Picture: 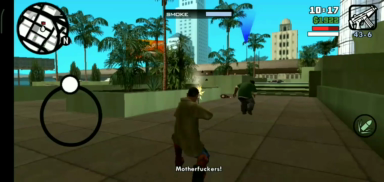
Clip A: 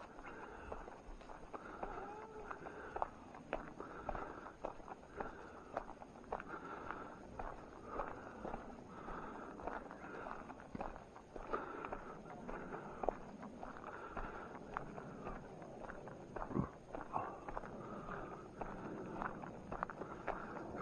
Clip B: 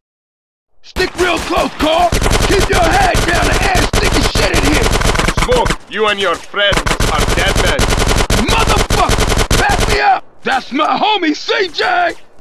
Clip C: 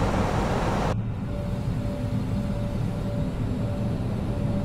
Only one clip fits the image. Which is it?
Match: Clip B